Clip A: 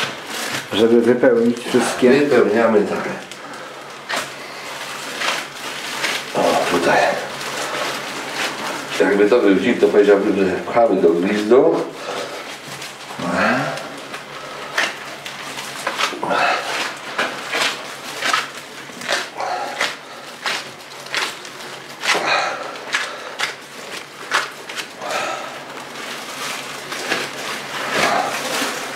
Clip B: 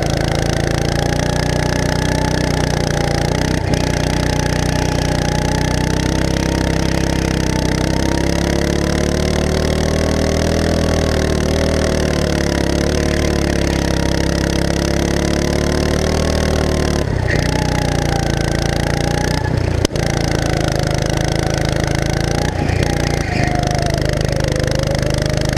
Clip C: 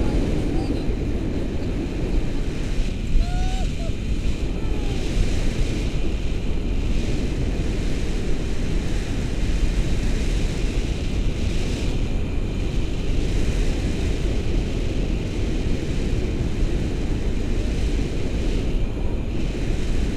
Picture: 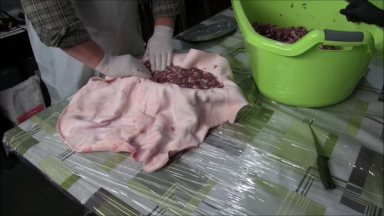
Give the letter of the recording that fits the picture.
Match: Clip A